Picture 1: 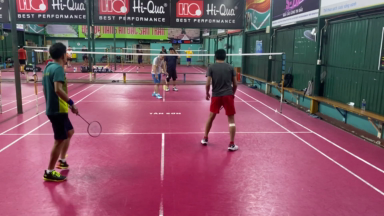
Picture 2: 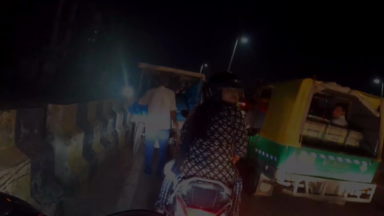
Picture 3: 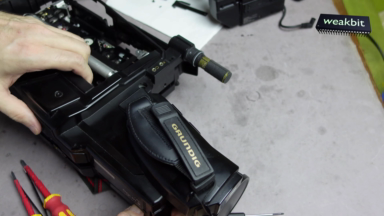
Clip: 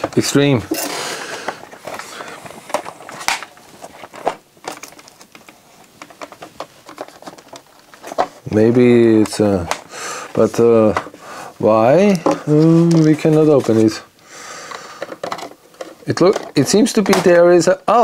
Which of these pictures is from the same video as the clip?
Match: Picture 3